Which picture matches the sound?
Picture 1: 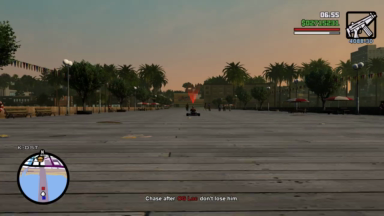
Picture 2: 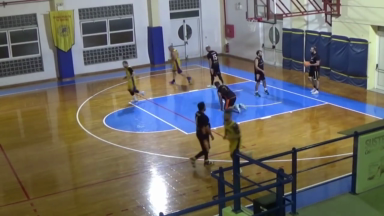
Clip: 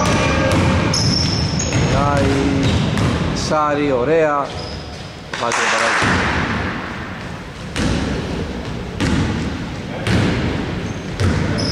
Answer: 2